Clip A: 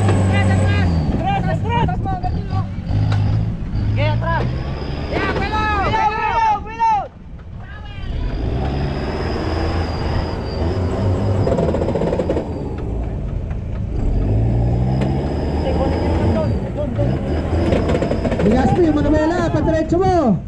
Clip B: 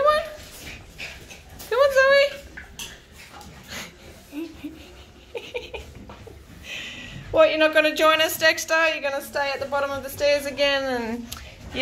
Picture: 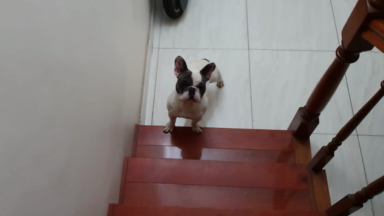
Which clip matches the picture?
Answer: B